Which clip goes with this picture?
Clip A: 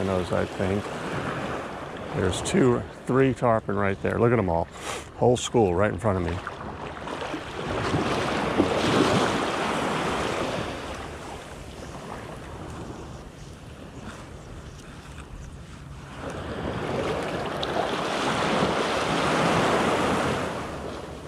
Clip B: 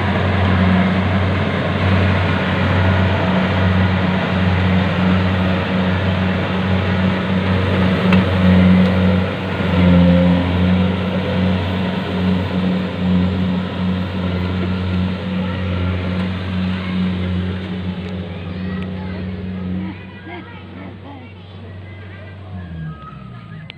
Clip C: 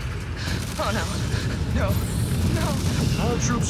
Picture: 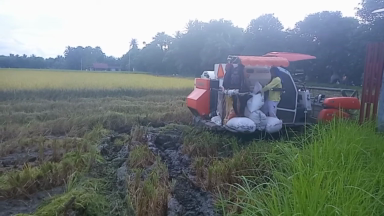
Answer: B